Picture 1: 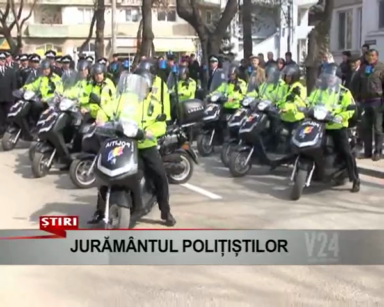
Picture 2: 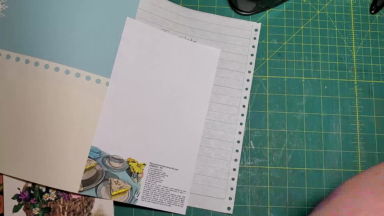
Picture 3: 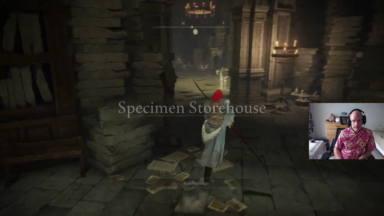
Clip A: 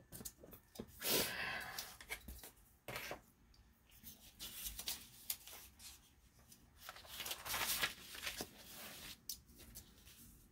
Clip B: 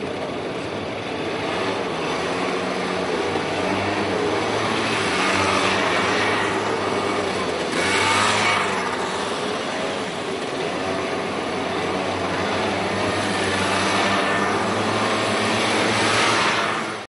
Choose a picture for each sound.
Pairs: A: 2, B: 1